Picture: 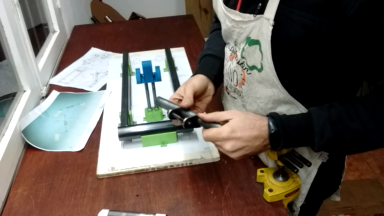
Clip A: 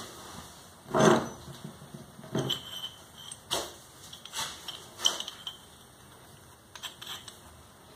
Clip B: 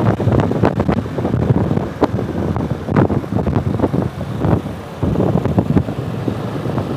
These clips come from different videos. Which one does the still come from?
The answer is A